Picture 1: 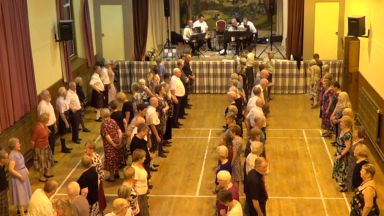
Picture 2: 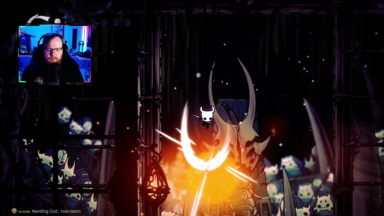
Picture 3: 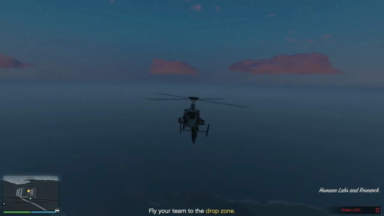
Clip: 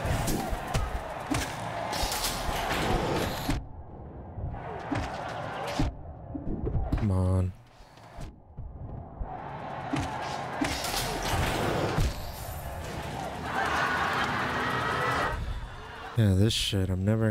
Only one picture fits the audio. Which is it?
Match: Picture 2